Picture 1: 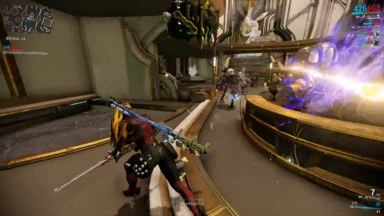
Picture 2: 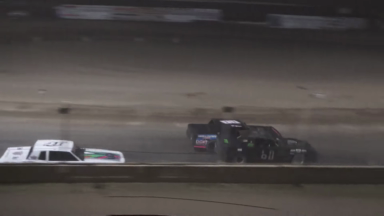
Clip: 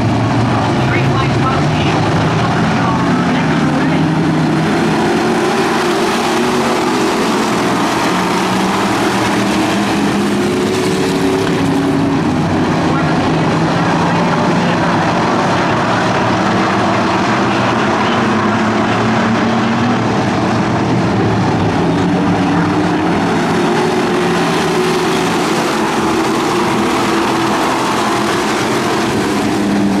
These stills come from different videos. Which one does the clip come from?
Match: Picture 2